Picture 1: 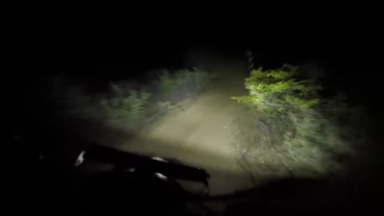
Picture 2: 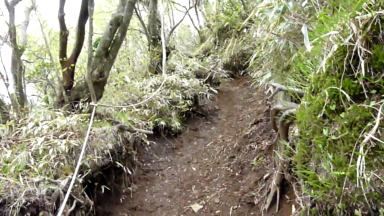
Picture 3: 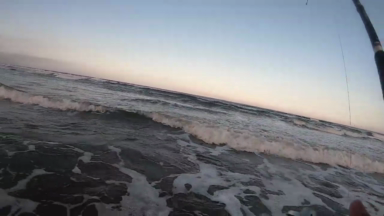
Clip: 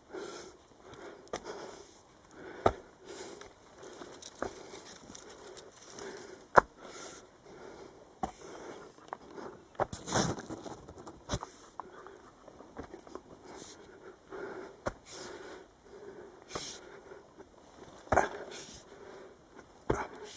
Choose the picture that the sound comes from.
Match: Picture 2